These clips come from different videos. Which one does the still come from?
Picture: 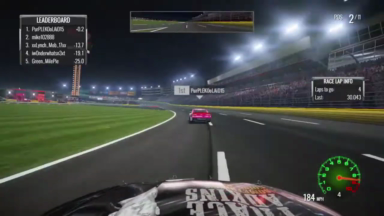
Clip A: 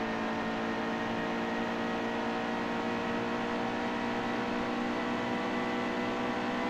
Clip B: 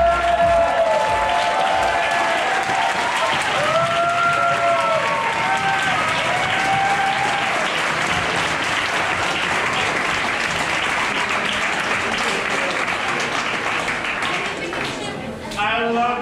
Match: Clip A